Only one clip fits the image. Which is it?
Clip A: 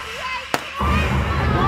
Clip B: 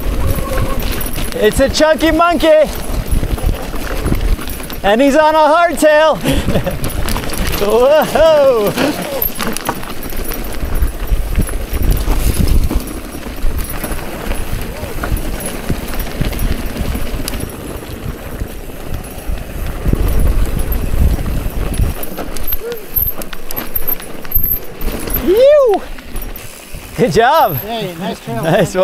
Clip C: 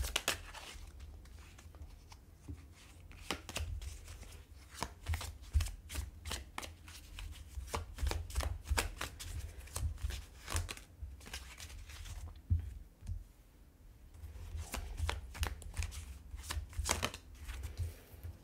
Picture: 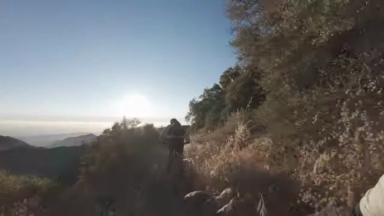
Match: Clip B